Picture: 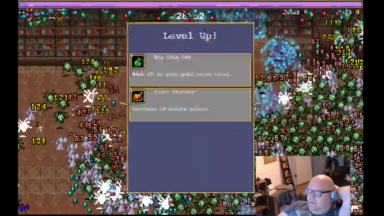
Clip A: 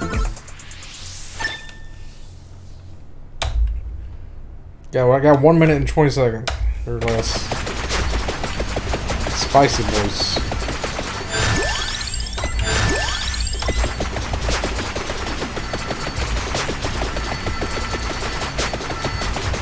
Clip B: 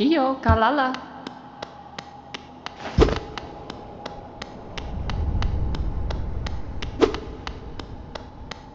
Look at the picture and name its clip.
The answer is A